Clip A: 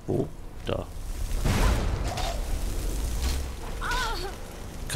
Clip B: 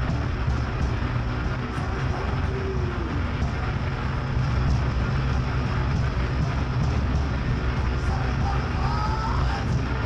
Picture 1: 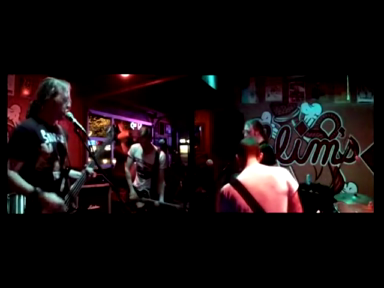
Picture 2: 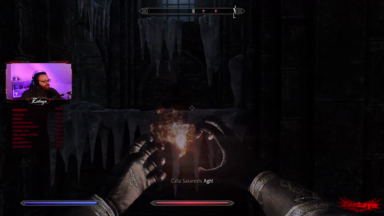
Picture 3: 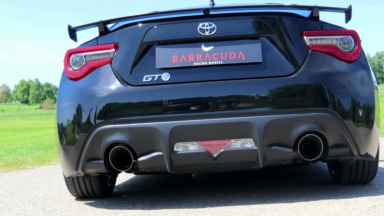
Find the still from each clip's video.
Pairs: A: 2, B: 1